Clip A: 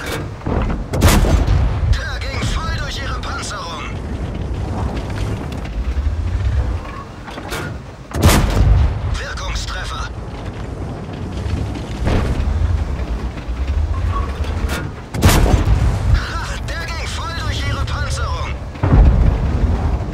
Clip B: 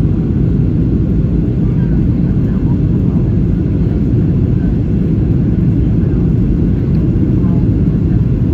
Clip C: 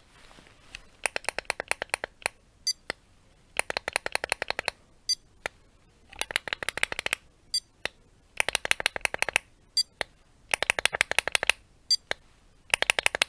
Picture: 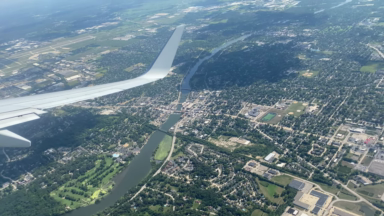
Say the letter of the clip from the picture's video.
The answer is B